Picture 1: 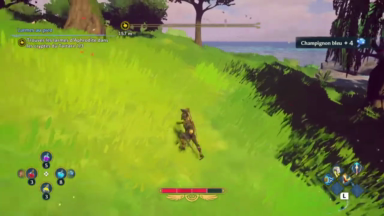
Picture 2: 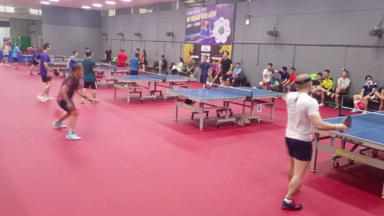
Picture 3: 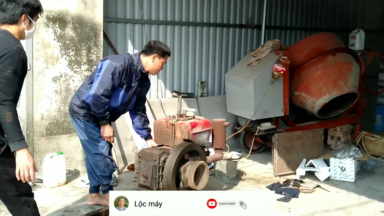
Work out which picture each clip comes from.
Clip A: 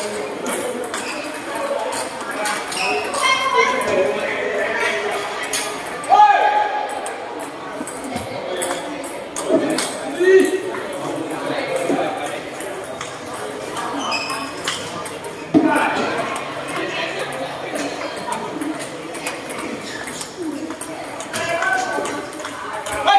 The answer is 2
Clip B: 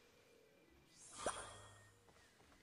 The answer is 1